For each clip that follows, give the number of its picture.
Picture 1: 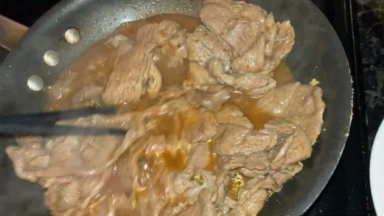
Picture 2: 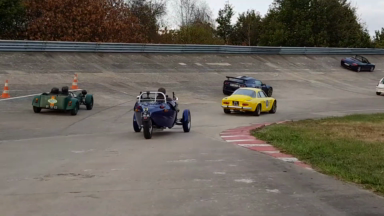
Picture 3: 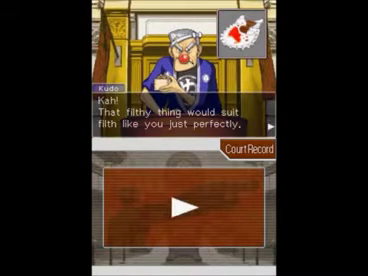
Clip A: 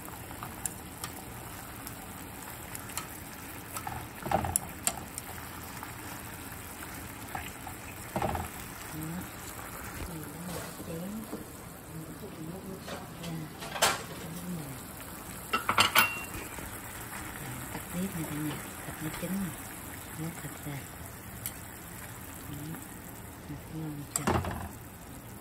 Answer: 1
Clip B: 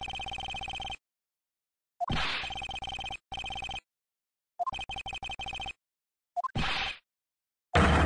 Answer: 3